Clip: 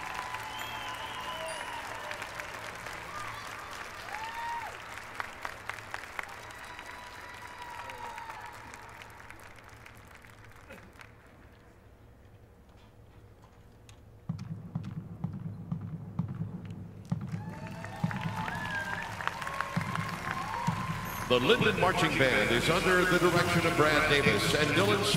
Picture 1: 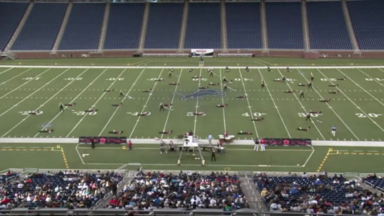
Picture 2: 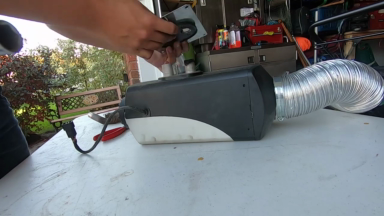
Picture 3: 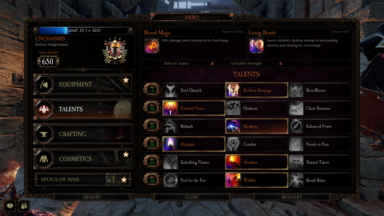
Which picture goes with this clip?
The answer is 1